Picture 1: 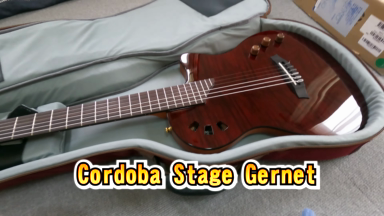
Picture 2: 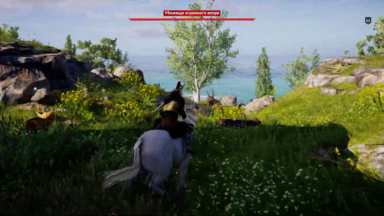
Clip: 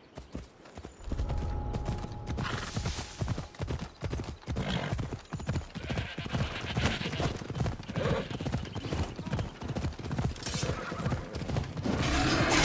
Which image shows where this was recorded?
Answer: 2